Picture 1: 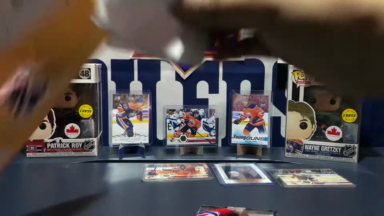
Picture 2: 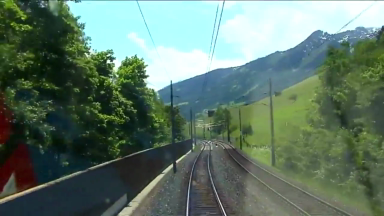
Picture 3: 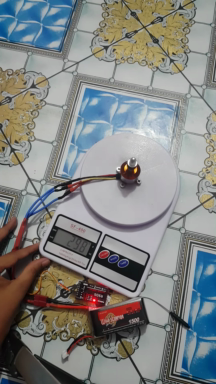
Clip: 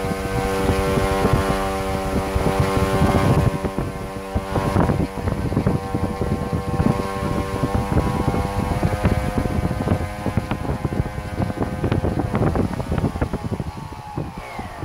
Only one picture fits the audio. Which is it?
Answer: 3